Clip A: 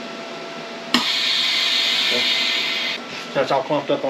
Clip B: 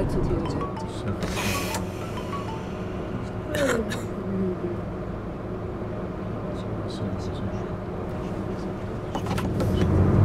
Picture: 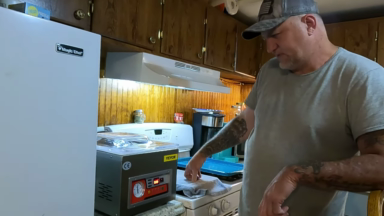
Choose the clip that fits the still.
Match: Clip A